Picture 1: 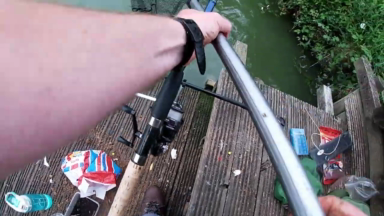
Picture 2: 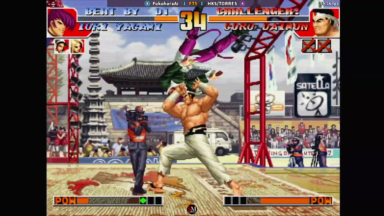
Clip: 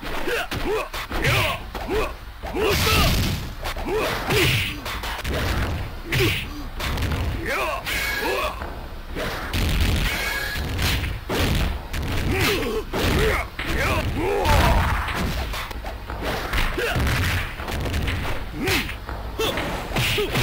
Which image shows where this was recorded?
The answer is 2